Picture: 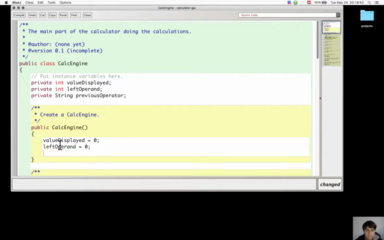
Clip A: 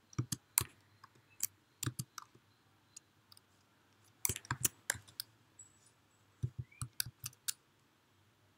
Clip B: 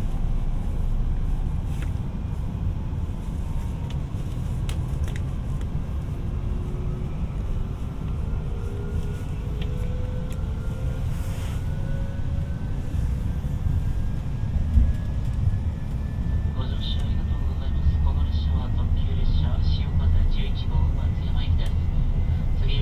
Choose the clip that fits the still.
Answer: A